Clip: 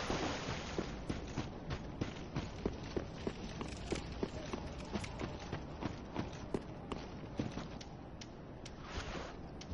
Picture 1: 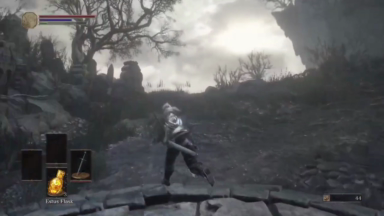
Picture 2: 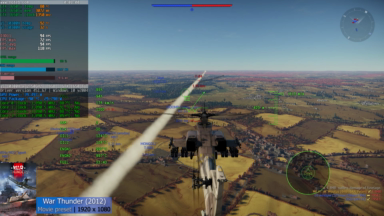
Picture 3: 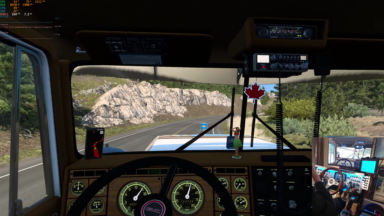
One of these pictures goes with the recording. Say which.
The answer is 1